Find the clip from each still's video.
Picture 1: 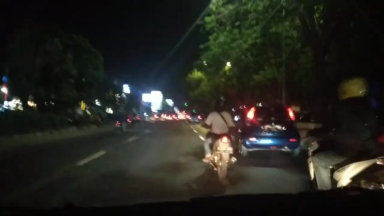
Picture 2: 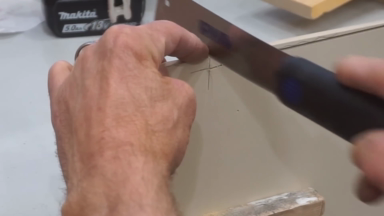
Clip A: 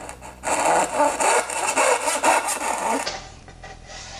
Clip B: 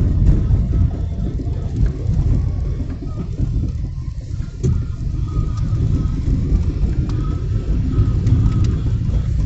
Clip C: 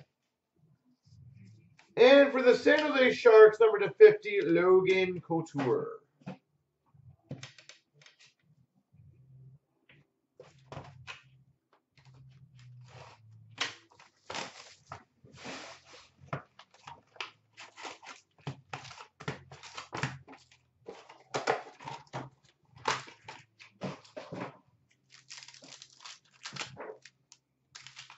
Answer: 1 B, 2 A